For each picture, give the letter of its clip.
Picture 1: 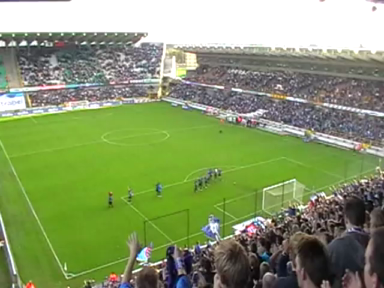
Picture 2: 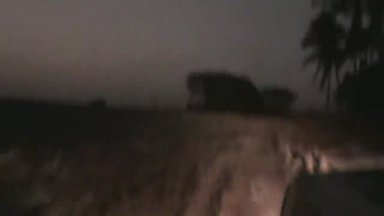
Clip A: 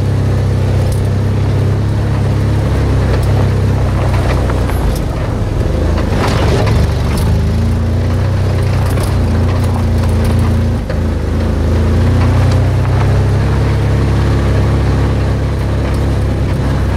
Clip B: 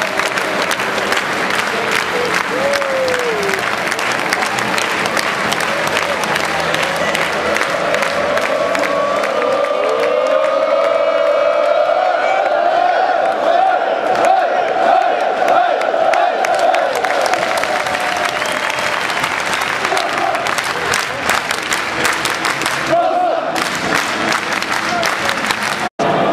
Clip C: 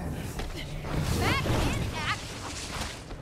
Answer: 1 B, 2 A